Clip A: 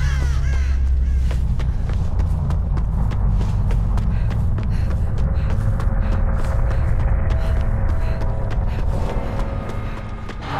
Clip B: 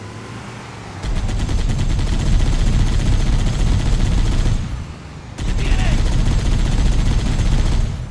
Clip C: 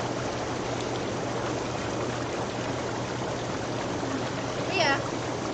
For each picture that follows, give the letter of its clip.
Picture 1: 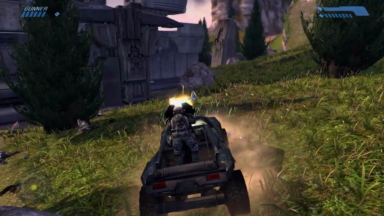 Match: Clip B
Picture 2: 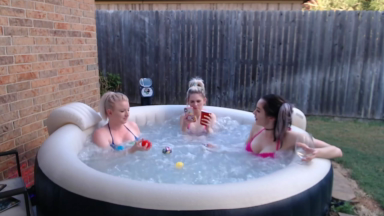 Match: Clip C